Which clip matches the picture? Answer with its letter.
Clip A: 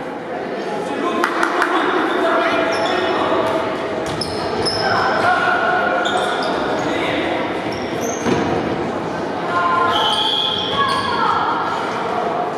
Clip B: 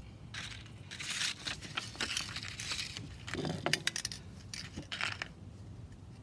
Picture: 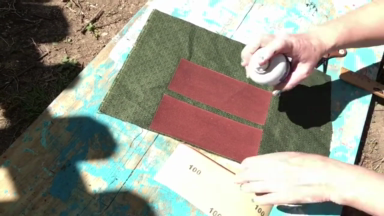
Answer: B